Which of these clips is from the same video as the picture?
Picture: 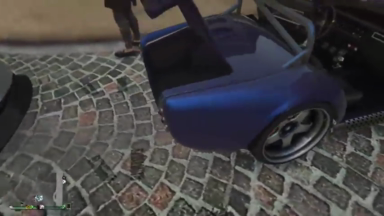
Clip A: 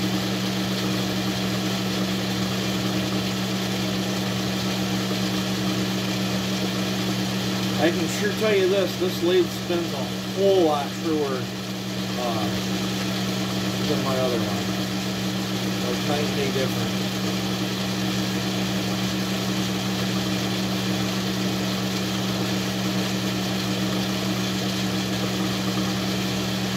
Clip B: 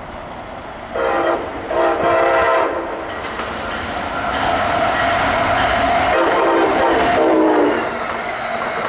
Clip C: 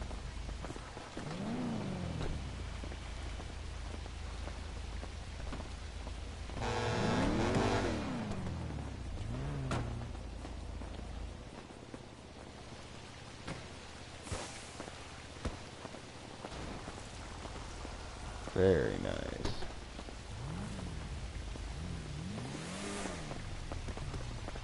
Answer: C